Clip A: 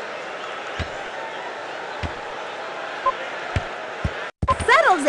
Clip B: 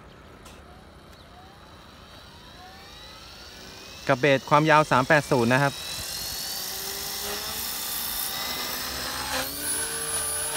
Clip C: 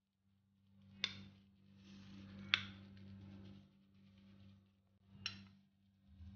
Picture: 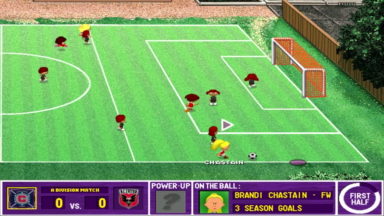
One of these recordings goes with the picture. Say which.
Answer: A